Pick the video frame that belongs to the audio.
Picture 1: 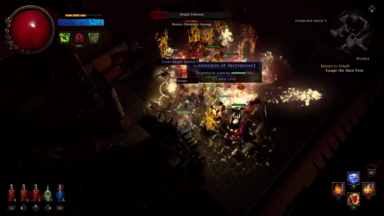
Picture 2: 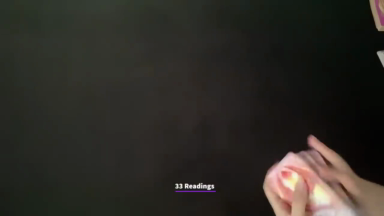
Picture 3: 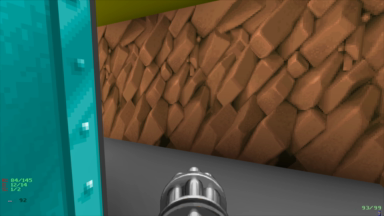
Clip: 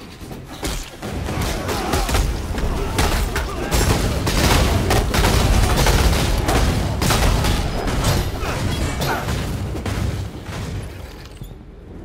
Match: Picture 1